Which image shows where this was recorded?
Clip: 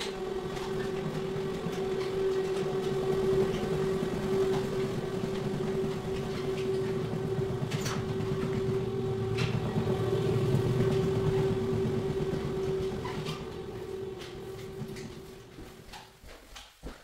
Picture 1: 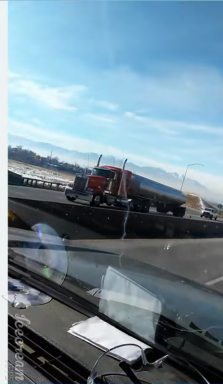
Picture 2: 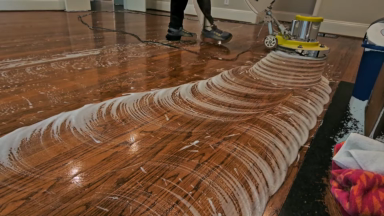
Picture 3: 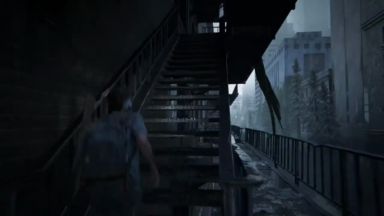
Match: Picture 2